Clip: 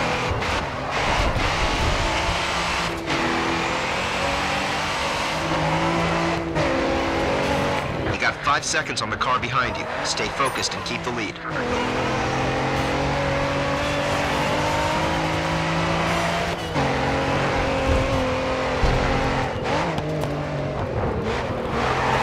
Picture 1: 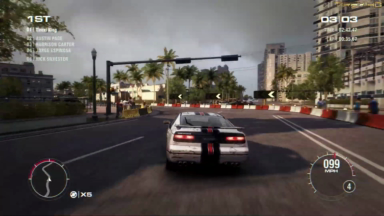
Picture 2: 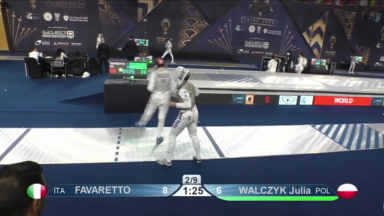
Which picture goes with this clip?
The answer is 1